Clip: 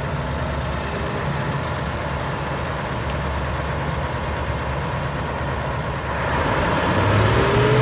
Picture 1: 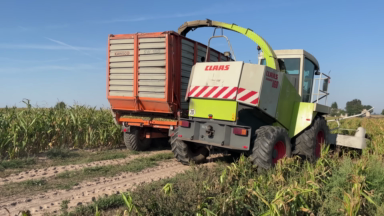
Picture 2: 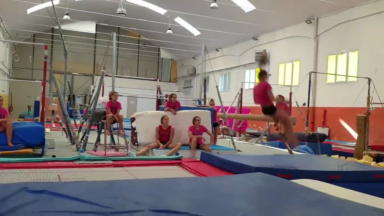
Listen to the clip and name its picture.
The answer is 1